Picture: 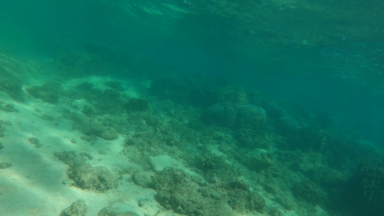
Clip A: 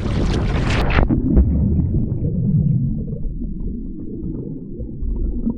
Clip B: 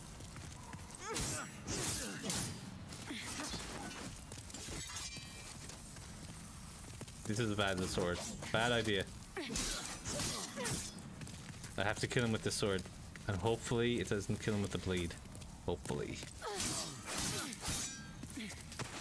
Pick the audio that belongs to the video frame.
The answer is A